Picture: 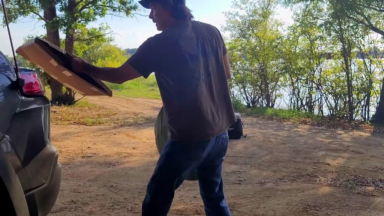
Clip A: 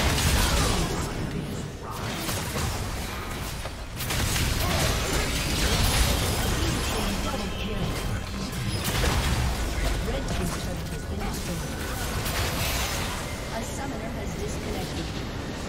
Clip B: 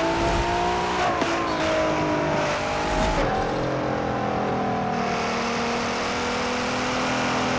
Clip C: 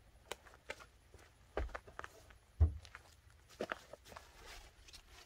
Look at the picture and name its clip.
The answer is C